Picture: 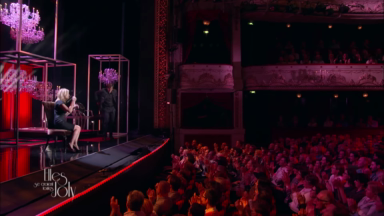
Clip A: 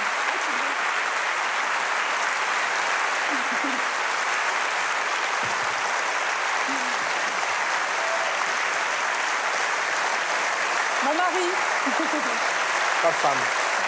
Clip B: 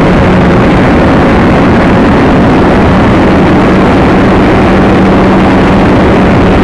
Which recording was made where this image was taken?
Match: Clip A